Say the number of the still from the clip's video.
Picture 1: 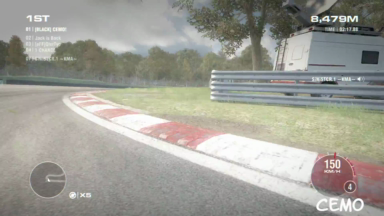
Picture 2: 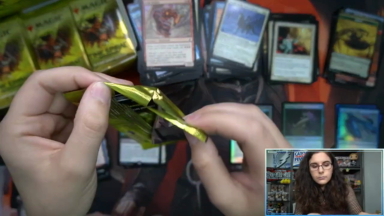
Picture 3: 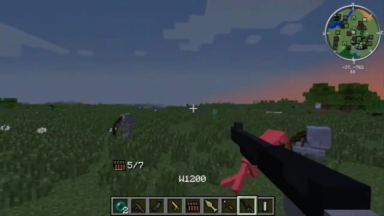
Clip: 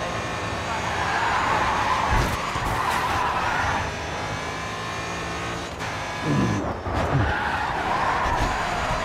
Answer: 1